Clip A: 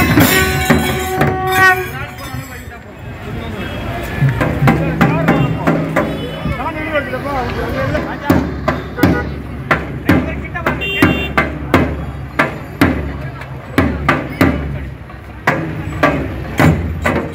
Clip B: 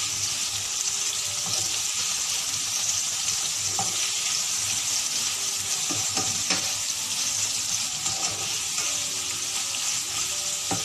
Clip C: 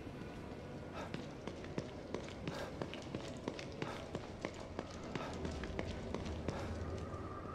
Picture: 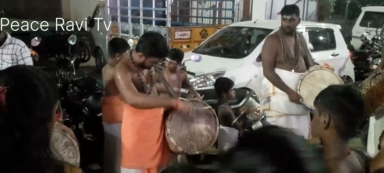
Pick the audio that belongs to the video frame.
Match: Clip A